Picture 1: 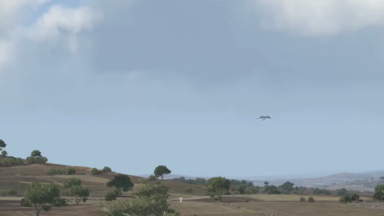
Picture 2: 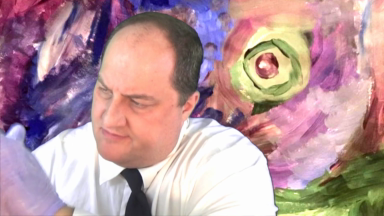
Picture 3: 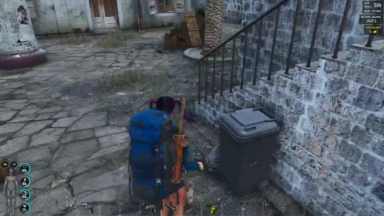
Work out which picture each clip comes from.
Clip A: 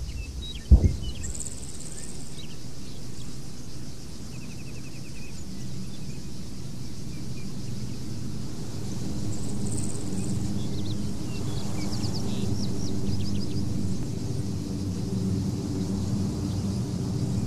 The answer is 1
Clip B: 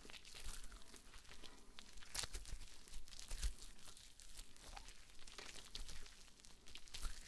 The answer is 2